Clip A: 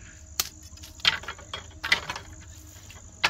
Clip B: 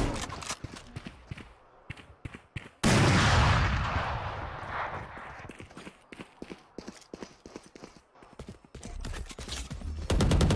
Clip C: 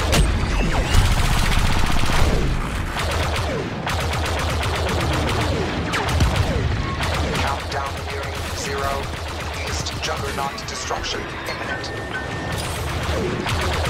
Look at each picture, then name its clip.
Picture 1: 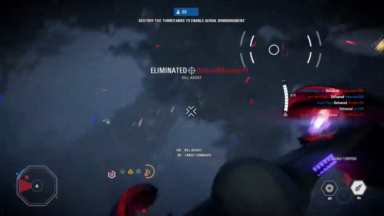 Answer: C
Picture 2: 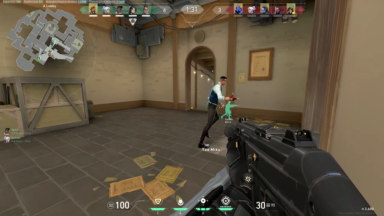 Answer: B